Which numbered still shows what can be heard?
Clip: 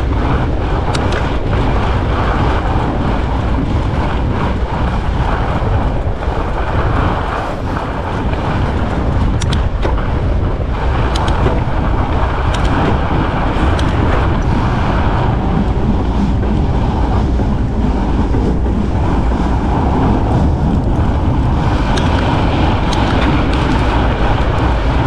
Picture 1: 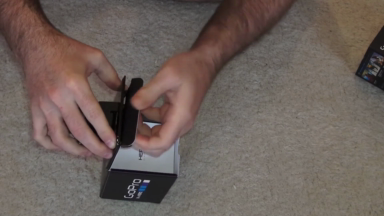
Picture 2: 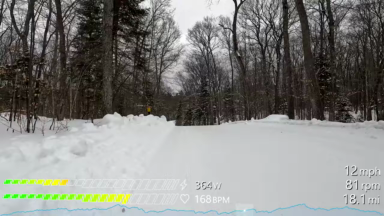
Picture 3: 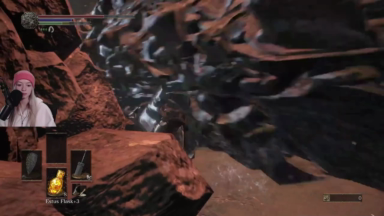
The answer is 2